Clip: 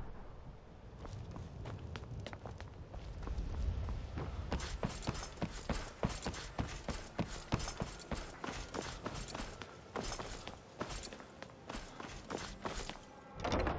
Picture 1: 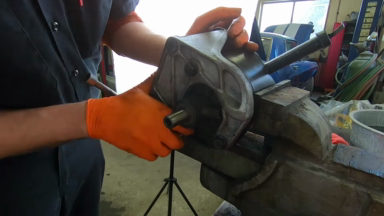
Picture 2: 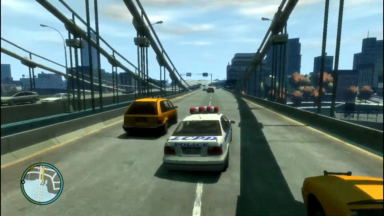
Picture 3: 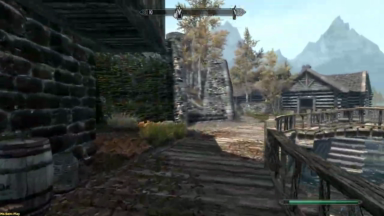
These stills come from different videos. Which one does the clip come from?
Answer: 3